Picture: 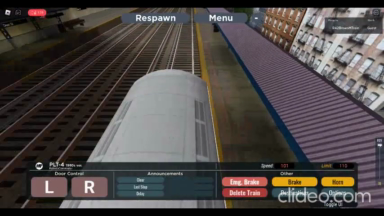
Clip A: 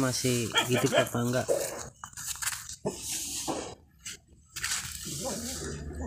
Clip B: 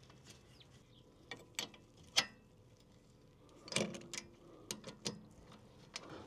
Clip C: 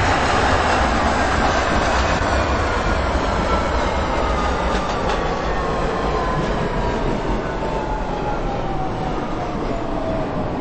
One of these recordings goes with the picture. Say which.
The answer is C